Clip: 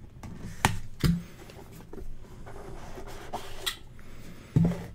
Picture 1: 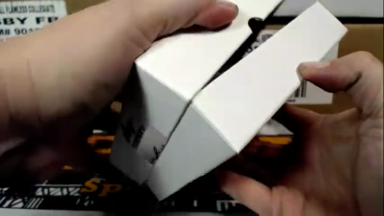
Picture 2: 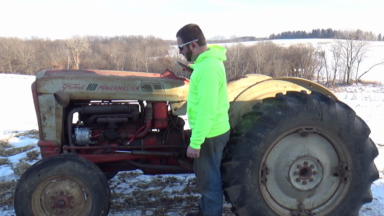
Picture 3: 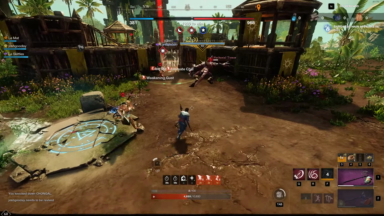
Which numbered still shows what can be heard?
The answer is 1